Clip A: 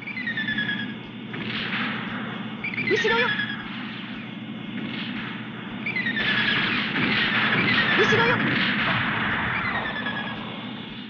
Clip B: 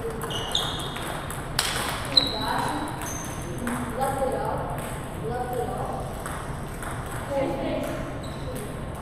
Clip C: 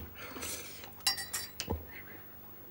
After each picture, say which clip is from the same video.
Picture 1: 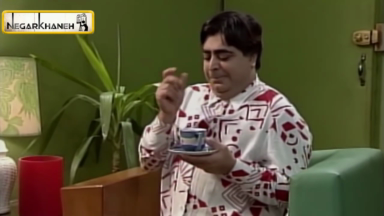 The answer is C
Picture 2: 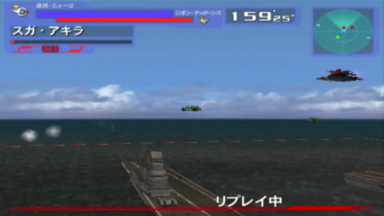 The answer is A